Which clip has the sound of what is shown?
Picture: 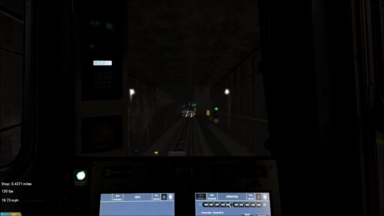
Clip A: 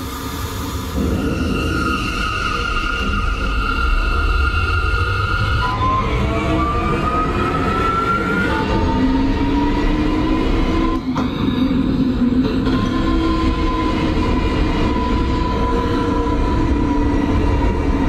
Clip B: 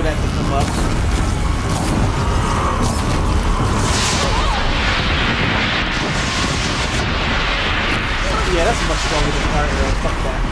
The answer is A